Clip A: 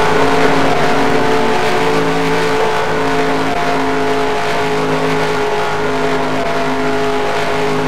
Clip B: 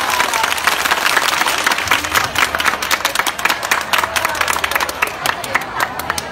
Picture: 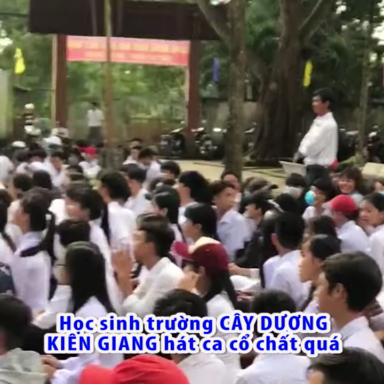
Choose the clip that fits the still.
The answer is B